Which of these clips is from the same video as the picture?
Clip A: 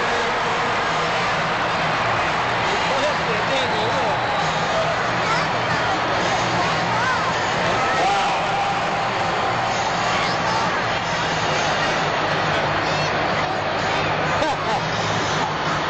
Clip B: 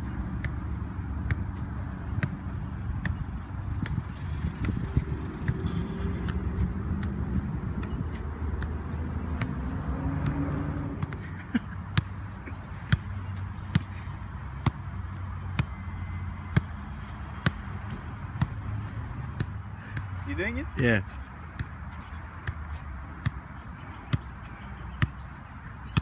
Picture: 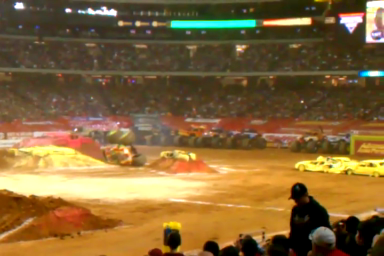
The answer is A